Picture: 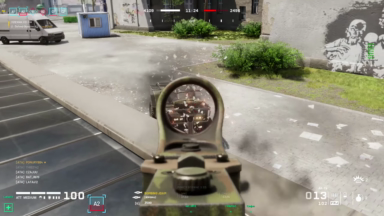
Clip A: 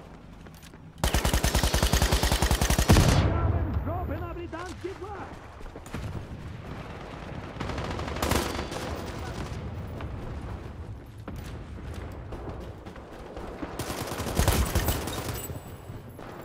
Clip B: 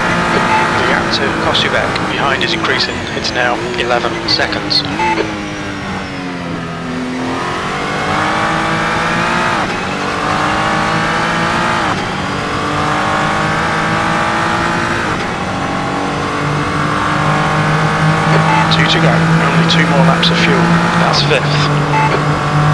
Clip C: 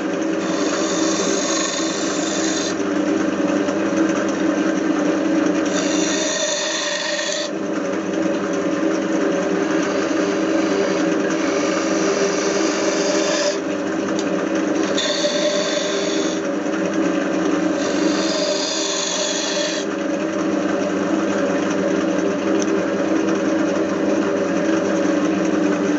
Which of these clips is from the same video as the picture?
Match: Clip A